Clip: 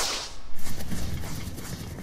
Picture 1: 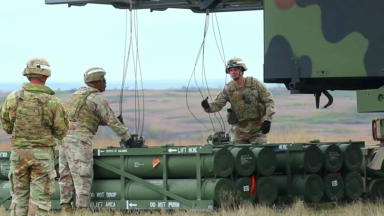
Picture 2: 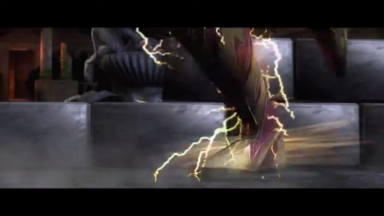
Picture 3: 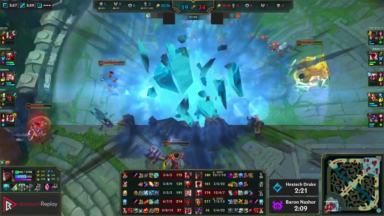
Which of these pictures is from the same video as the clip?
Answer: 2